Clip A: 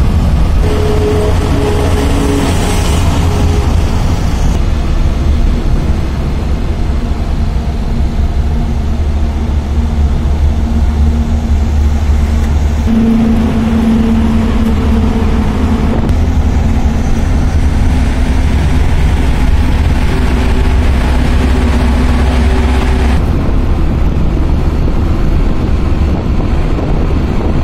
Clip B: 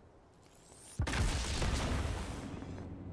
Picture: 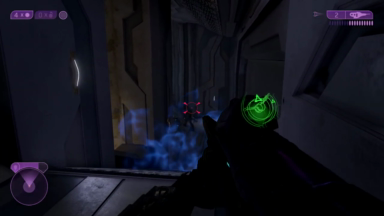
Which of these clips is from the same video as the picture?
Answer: B